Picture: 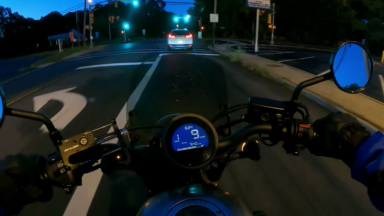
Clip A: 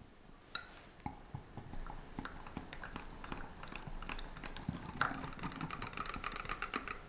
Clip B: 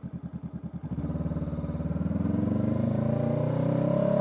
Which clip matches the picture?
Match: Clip B